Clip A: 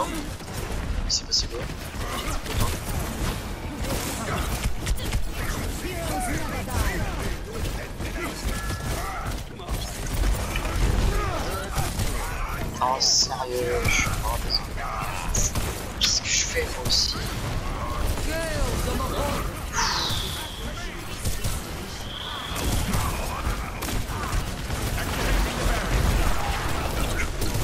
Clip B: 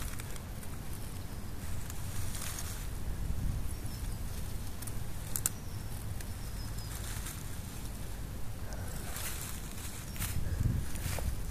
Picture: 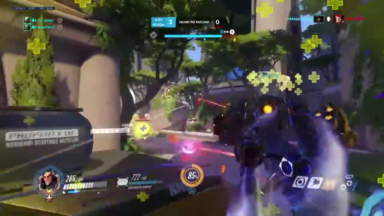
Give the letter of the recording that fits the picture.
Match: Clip A